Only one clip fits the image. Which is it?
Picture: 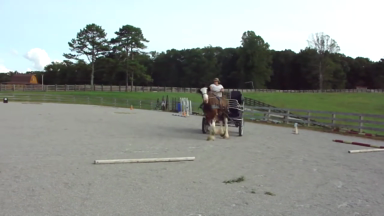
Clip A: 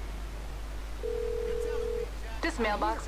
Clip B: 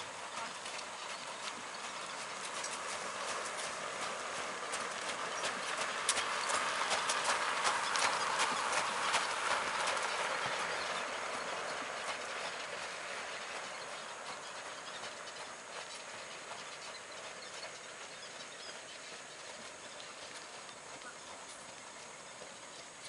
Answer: B